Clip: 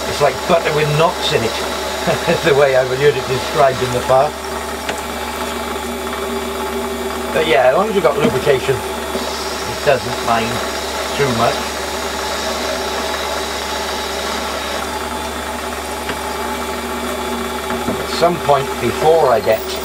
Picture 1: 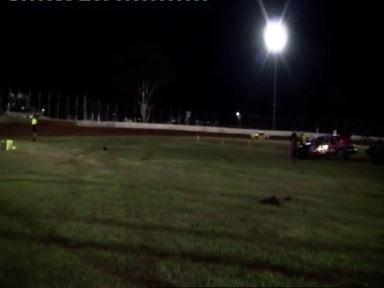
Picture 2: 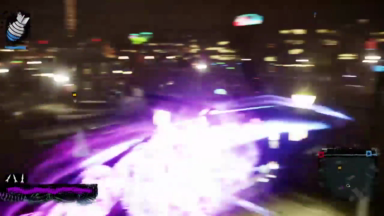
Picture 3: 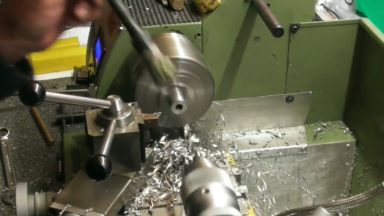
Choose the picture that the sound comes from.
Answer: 3